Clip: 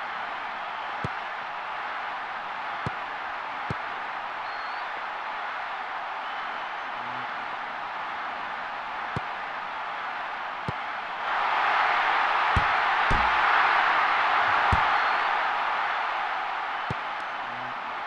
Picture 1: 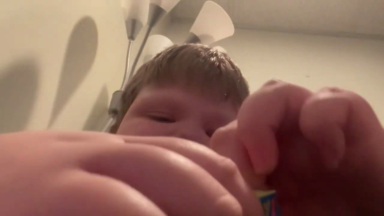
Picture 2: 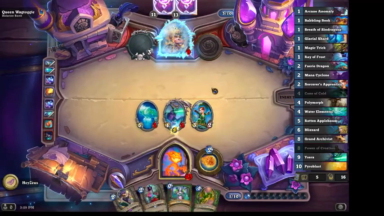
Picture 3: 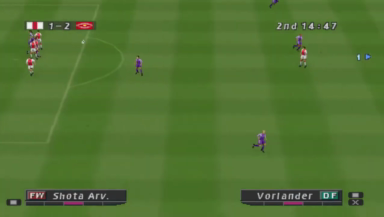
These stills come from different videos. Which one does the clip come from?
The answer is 3